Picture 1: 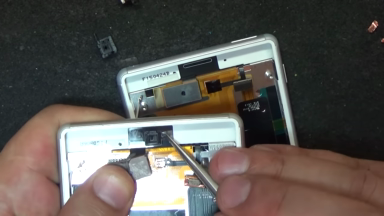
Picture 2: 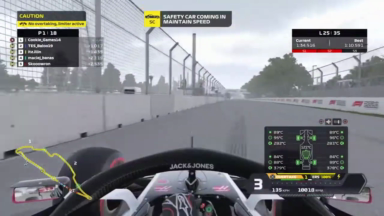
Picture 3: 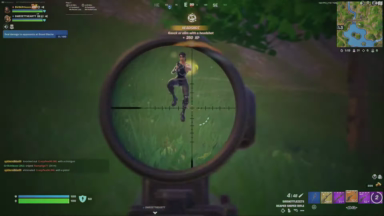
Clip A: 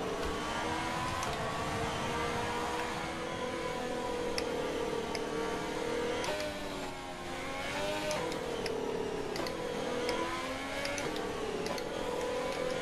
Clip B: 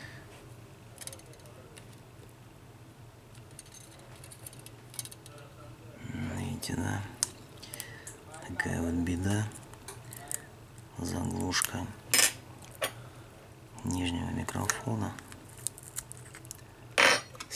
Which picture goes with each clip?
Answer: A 2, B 1